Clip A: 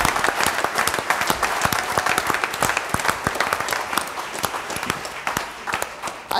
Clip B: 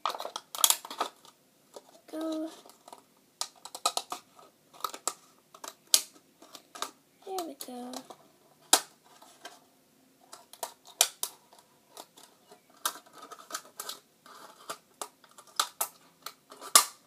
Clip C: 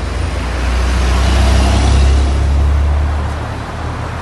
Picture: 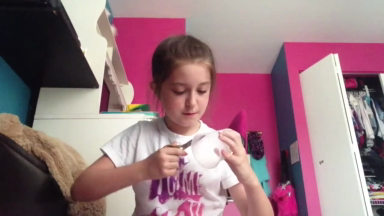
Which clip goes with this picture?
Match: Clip B